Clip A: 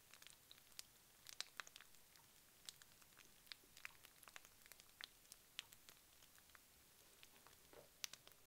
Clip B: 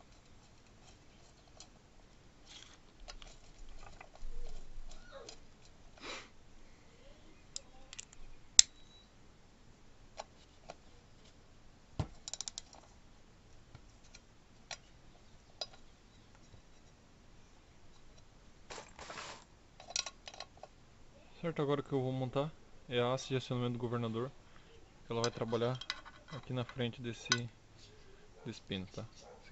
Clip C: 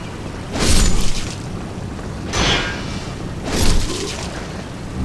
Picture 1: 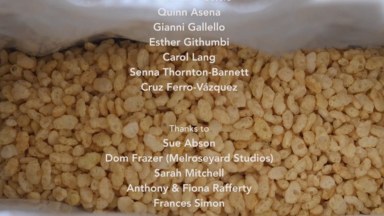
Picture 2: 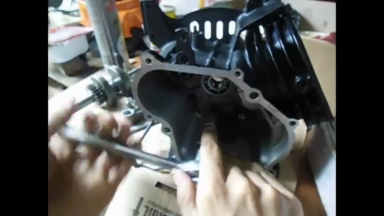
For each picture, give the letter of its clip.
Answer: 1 A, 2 B